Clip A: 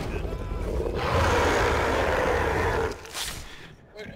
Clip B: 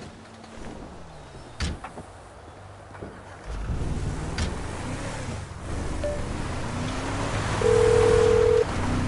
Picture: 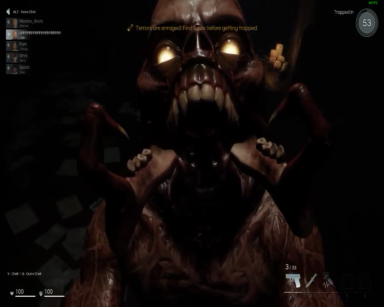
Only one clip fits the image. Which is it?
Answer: A